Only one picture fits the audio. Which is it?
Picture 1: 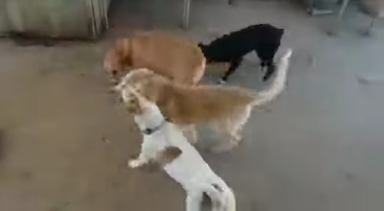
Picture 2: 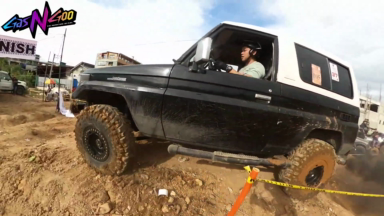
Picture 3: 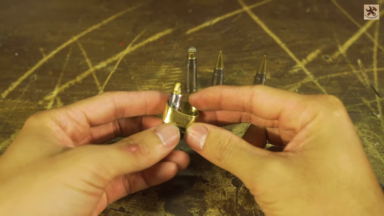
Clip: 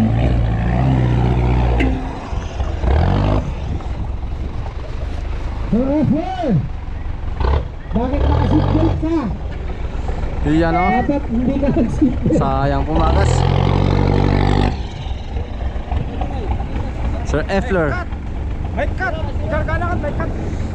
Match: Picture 2